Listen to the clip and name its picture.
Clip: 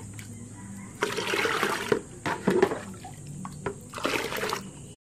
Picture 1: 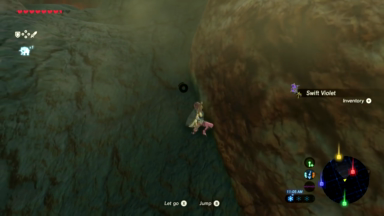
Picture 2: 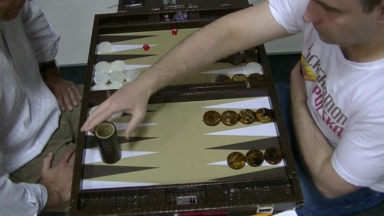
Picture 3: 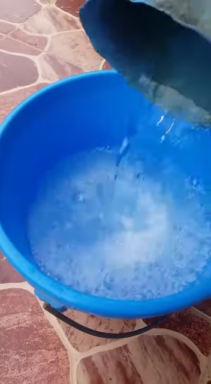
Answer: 3